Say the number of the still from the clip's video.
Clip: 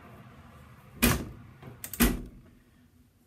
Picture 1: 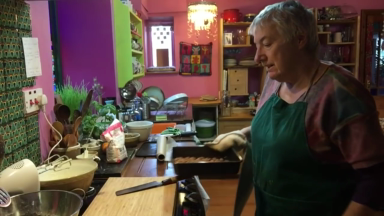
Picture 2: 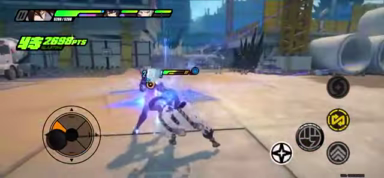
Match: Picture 1